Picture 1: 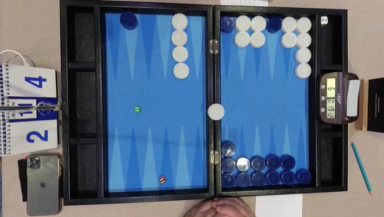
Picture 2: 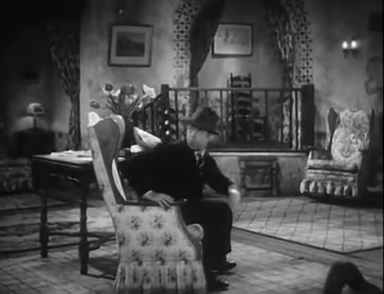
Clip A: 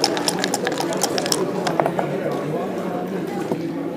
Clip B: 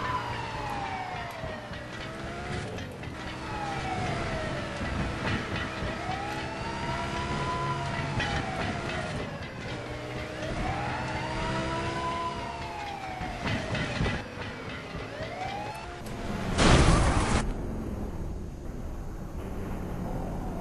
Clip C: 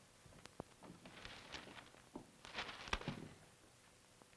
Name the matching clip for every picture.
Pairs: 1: A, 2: C